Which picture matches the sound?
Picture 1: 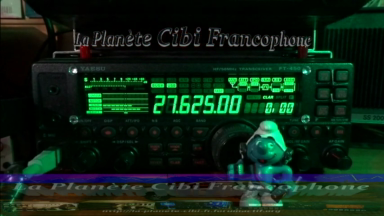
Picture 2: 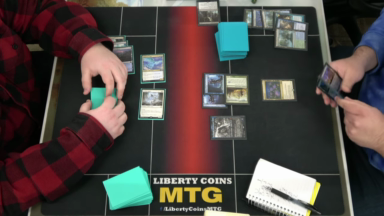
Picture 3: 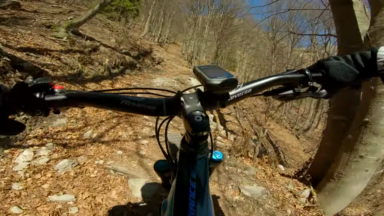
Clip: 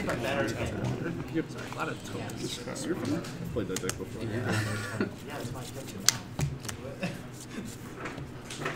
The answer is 2